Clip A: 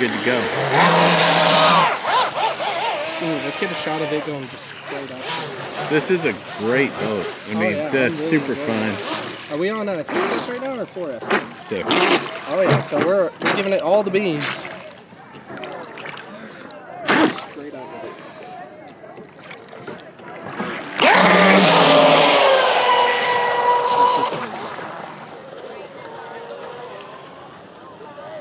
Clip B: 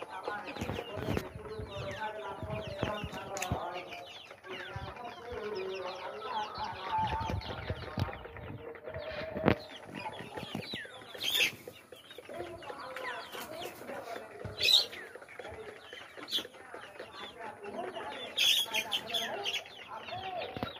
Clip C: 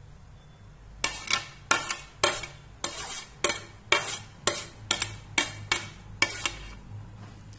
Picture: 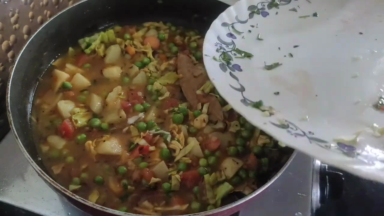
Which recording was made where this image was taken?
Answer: C